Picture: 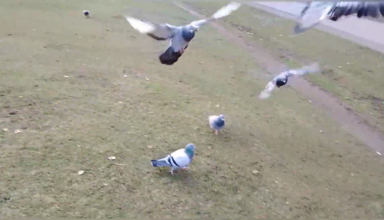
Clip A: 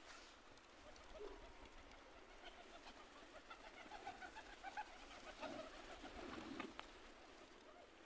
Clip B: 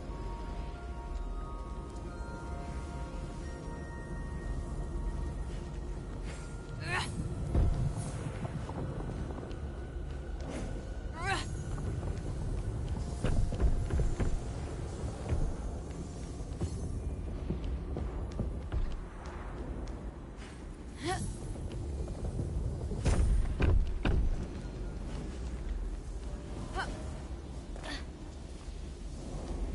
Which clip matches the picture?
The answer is A